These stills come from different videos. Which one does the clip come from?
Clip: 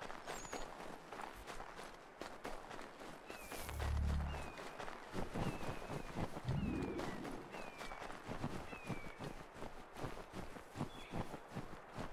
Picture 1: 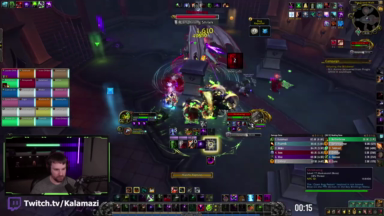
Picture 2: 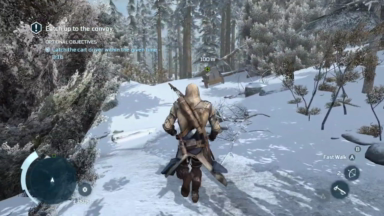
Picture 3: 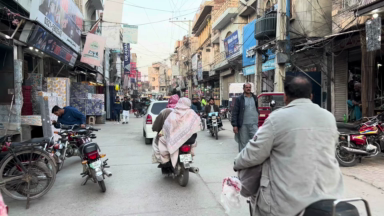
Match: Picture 2